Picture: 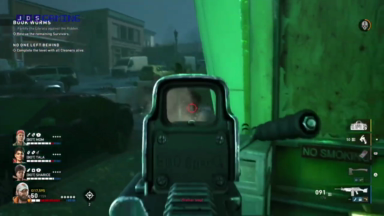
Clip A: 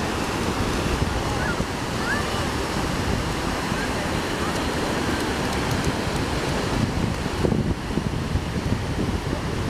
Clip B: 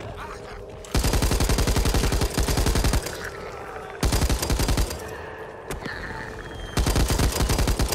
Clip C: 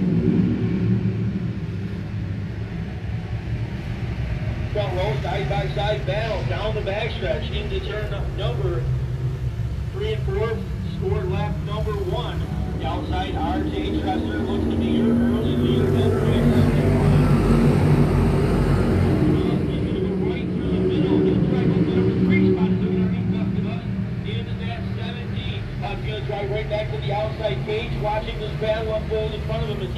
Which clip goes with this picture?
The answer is B